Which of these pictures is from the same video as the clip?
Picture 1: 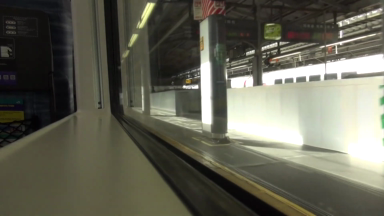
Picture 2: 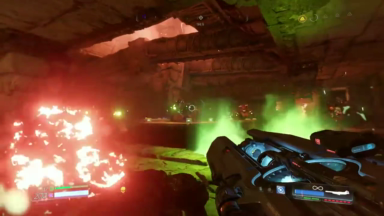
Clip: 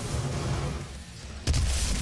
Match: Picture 2